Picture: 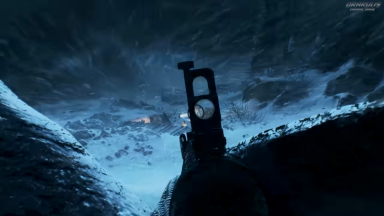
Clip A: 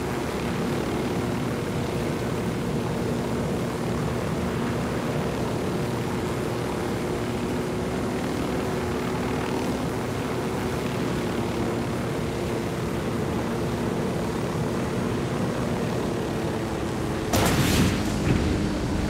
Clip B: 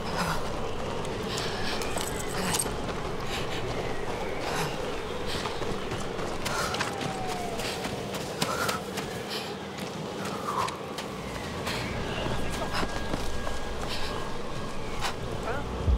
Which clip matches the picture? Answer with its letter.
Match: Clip B